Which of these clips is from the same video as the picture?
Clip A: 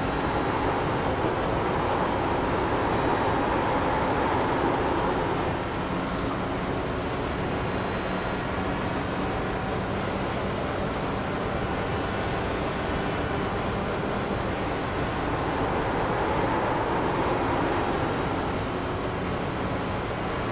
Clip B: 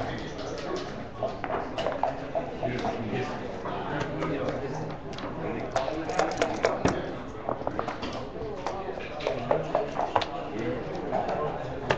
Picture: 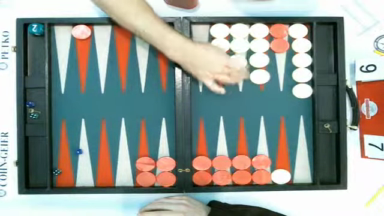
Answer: B